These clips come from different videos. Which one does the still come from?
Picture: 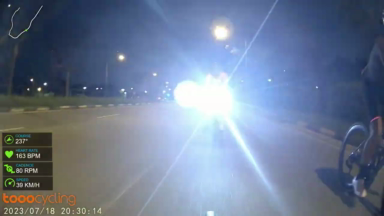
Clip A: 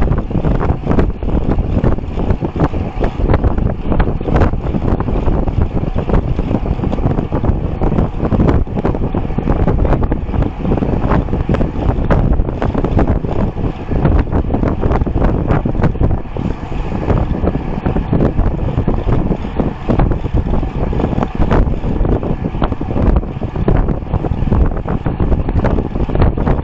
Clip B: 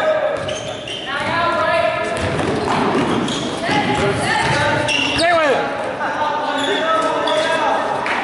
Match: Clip A